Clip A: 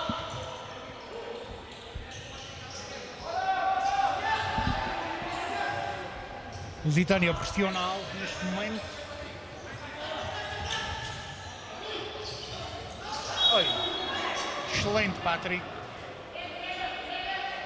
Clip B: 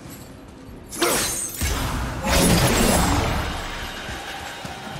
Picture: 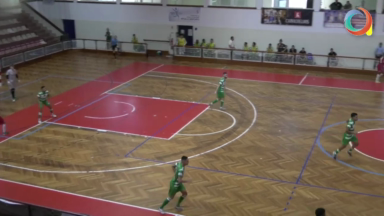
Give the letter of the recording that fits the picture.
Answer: A